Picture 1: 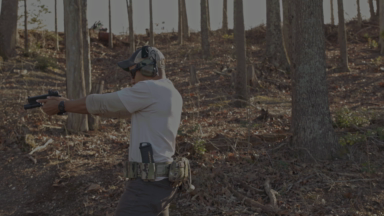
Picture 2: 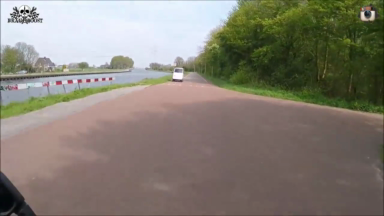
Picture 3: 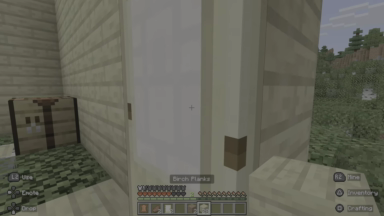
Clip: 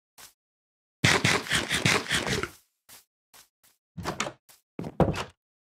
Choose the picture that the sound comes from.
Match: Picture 3